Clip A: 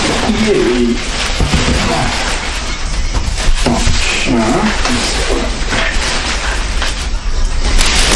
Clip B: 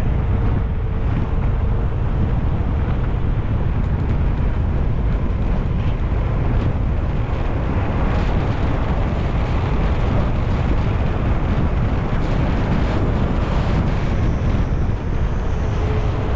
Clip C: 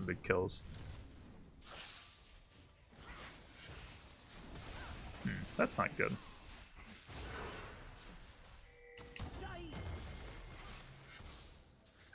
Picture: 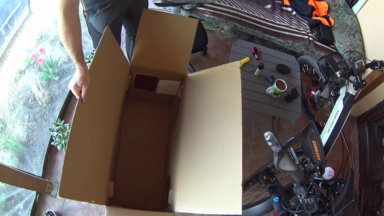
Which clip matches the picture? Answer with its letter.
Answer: A